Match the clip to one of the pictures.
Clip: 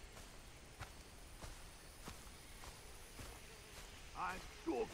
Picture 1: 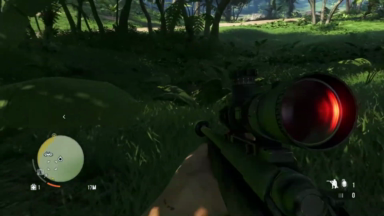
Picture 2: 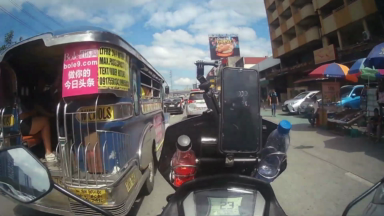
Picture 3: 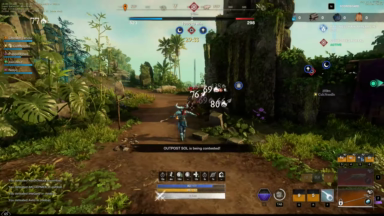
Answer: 1